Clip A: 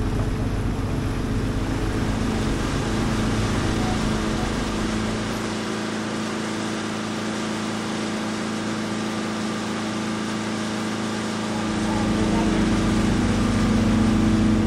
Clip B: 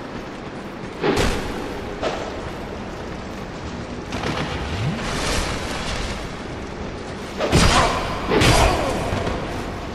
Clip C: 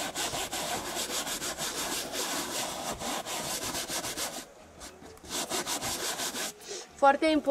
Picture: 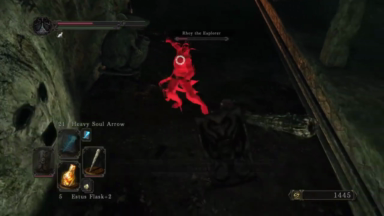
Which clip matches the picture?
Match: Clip B